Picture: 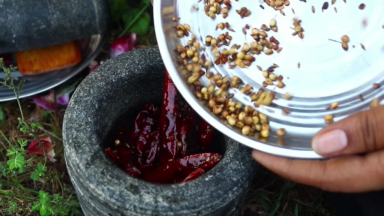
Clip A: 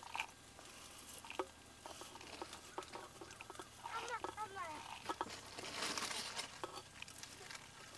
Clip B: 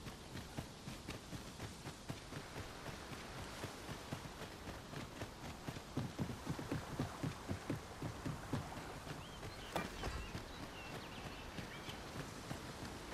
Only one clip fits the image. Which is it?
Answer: A